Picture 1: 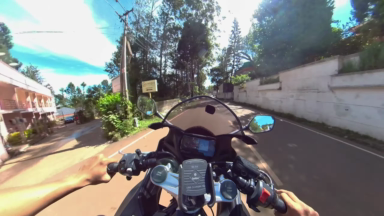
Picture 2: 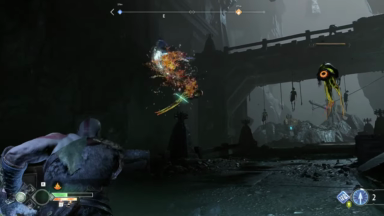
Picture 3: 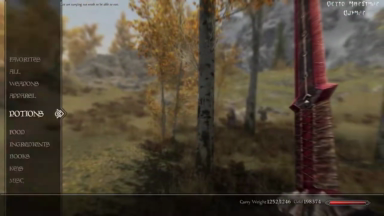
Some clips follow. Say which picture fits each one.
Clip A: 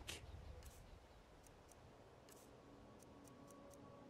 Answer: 3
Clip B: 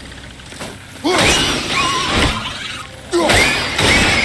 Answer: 2